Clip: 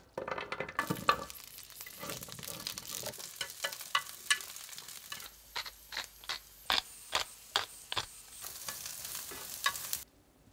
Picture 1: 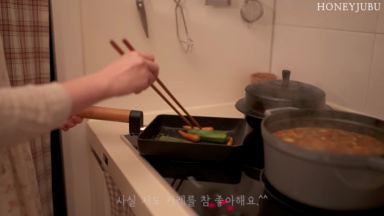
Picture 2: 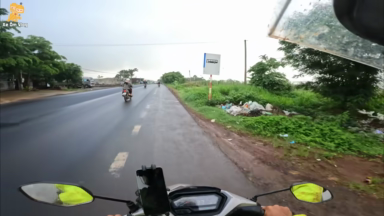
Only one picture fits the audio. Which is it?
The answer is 1